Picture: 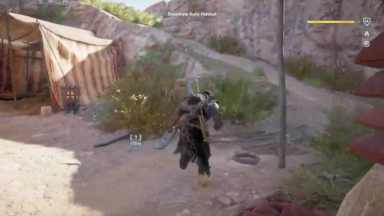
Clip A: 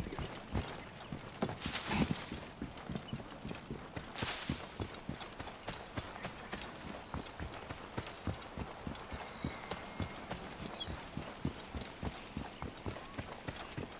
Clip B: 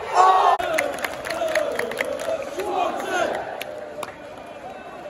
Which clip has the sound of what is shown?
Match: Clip A